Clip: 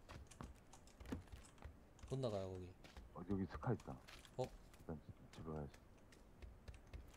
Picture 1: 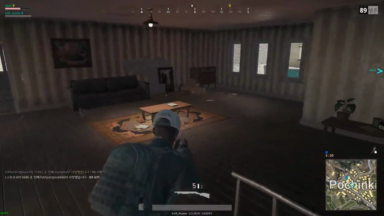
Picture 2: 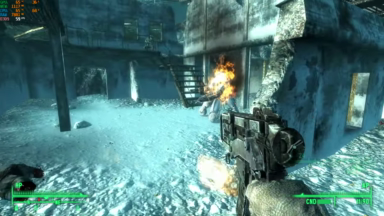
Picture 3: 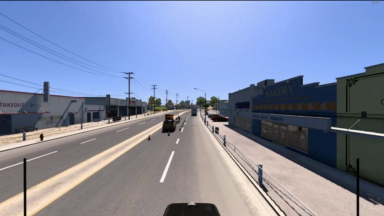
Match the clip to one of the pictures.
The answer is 1